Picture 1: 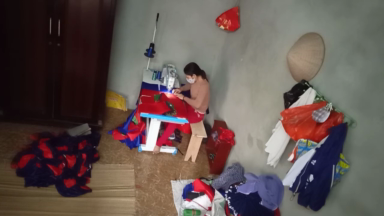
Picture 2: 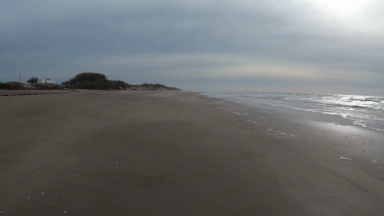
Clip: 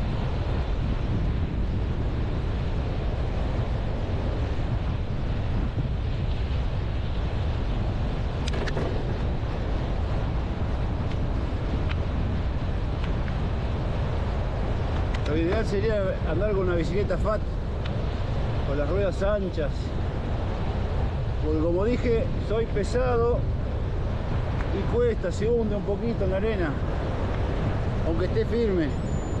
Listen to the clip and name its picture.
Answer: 2